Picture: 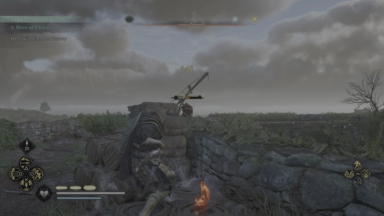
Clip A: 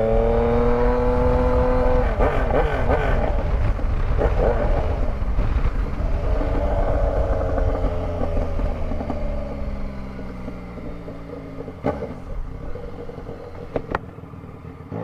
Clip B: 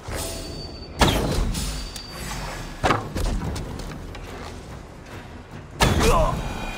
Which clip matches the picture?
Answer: B